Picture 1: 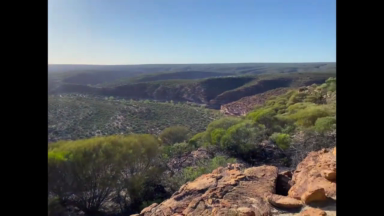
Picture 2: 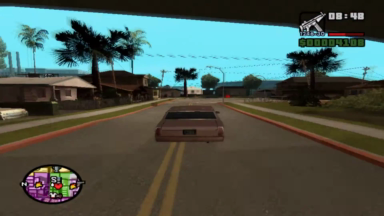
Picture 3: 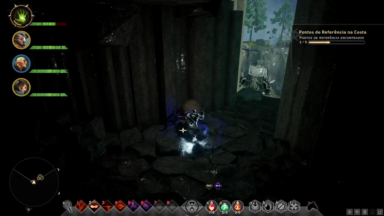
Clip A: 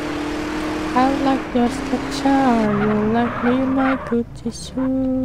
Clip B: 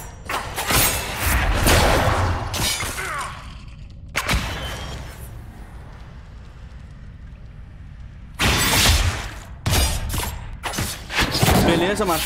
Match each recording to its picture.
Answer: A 2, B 3